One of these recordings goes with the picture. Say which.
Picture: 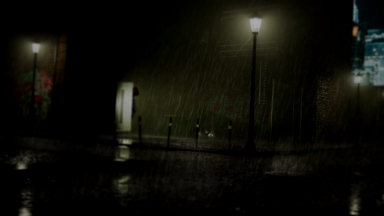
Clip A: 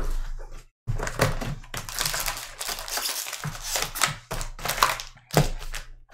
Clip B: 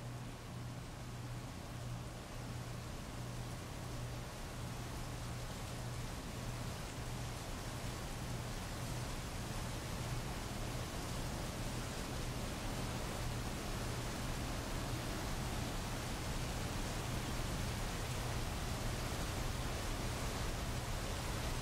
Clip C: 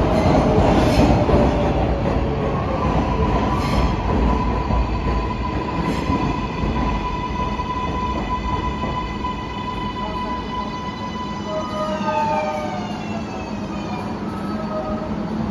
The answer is B